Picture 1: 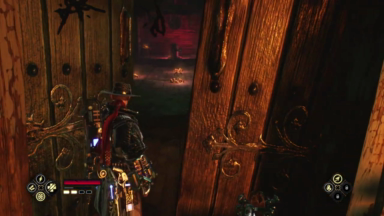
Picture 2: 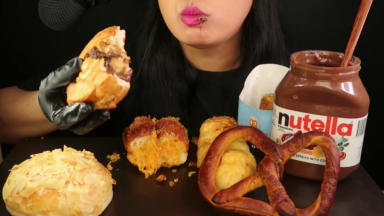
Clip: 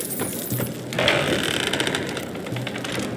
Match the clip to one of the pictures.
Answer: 1